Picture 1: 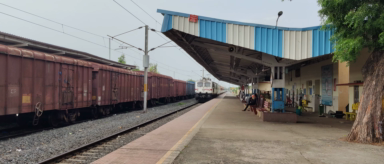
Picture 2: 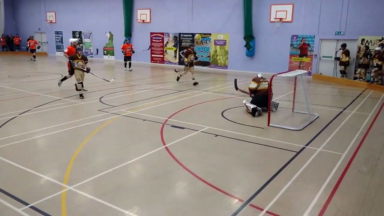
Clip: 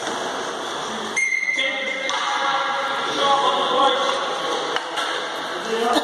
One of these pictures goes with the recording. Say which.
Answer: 2